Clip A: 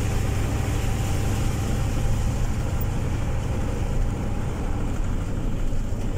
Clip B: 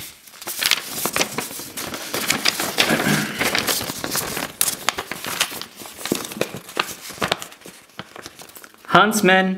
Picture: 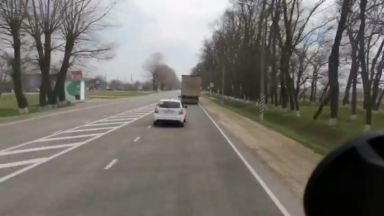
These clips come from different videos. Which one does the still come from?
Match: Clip A